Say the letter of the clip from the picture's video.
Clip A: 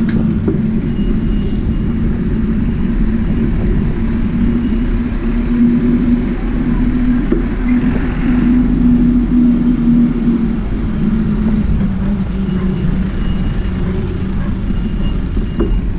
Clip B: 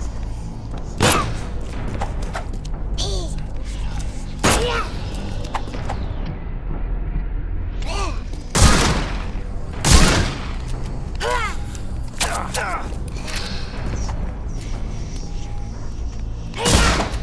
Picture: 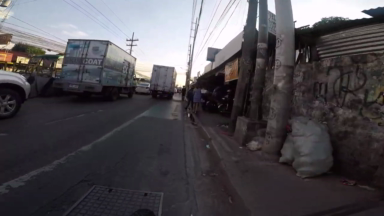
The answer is A